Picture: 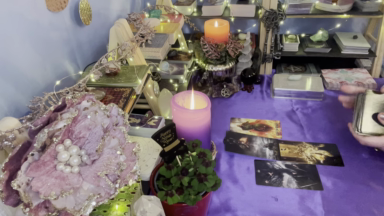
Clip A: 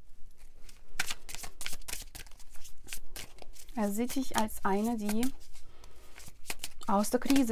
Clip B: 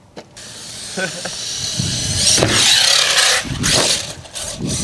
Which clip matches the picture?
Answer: A